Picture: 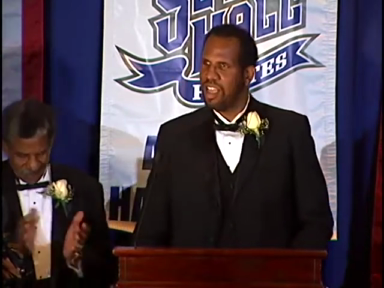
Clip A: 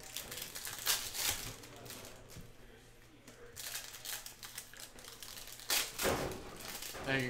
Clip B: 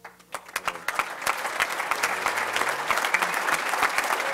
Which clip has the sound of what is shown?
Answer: B